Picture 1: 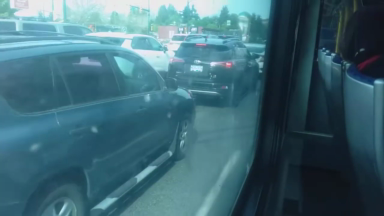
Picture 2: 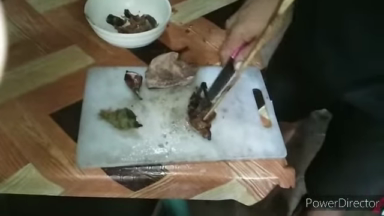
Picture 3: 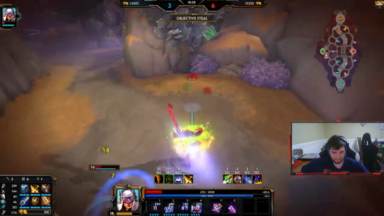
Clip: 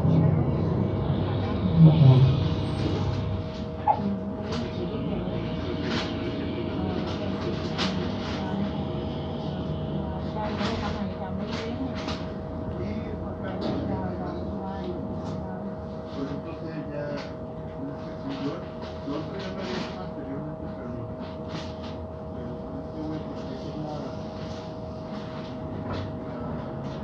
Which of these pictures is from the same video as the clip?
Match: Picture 1